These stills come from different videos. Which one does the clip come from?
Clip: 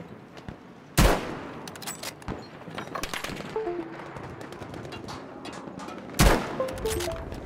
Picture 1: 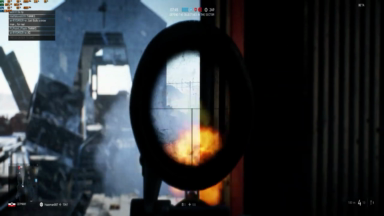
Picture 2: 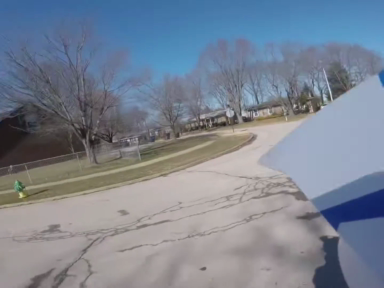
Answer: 1